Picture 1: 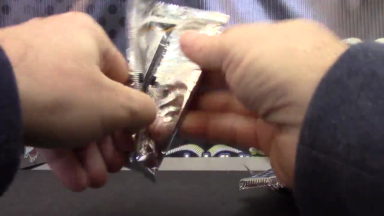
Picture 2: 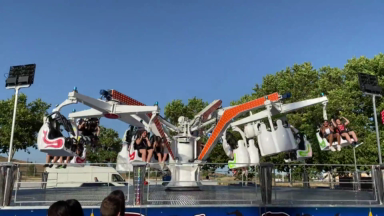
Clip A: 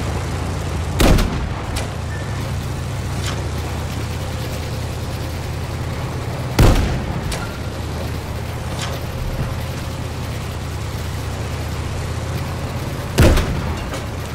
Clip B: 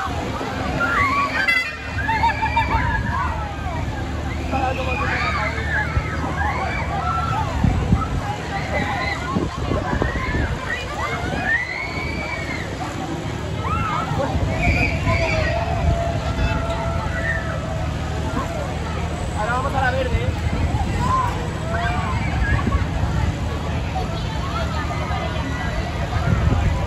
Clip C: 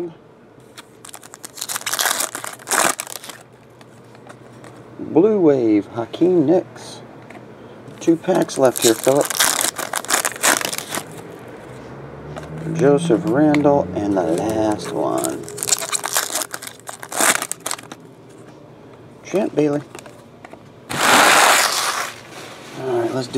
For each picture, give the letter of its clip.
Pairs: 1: C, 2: B